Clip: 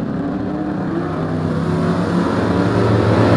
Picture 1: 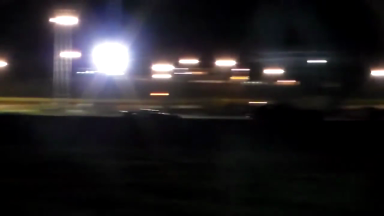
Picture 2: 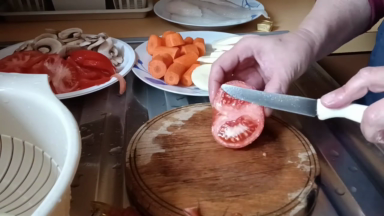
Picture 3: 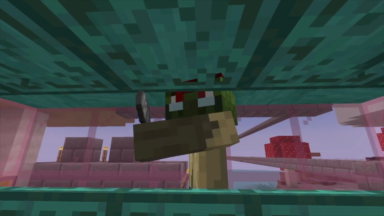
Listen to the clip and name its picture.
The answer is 1